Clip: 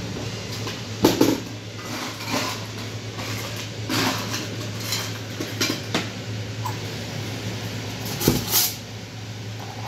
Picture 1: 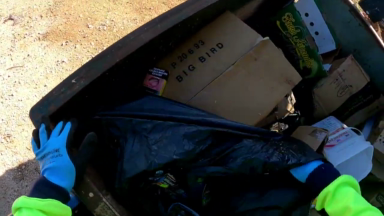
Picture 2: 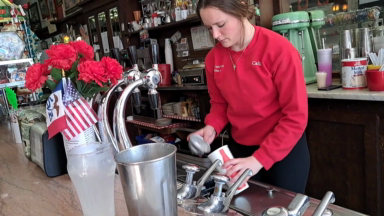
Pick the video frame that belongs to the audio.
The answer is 2